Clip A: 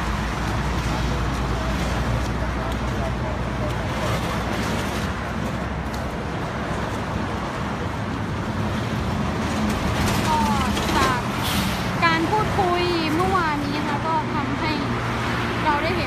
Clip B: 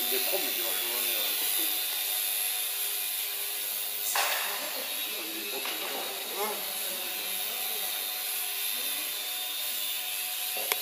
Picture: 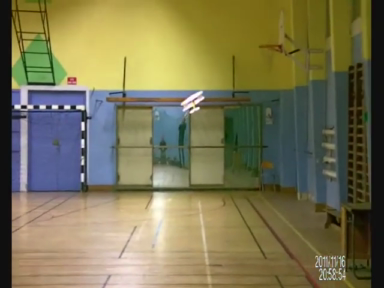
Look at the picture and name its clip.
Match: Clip B